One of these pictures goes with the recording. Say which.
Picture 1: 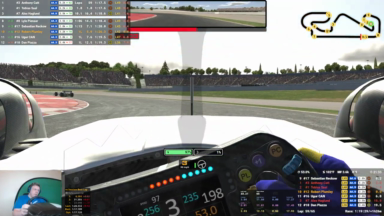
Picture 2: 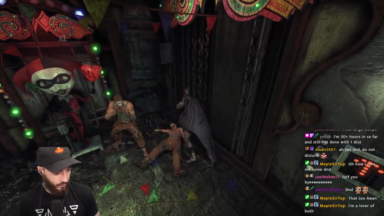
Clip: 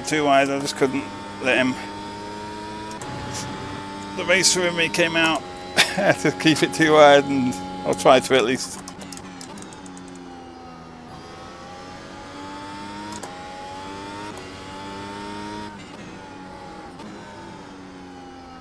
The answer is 1